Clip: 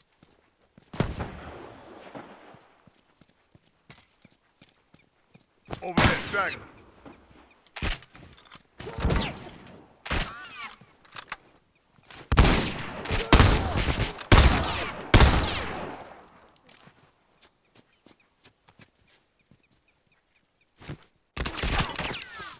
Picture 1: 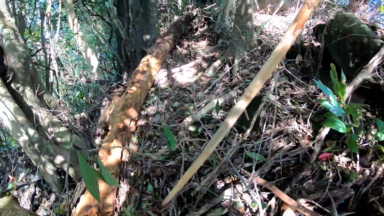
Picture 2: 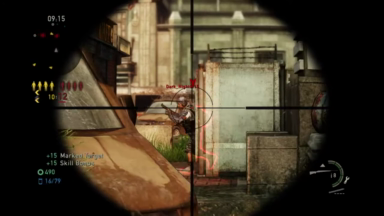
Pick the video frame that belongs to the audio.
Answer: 2